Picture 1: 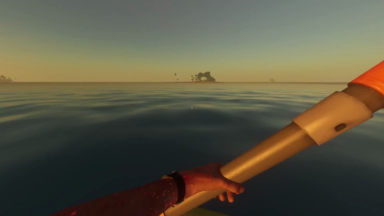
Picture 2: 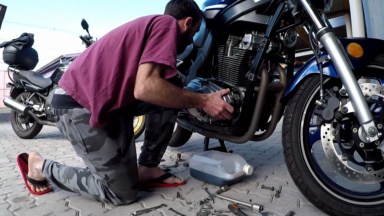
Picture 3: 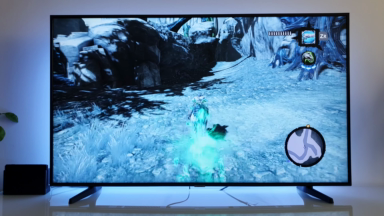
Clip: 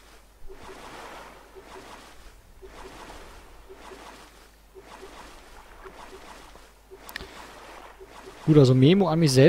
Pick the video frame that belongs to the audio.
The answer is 1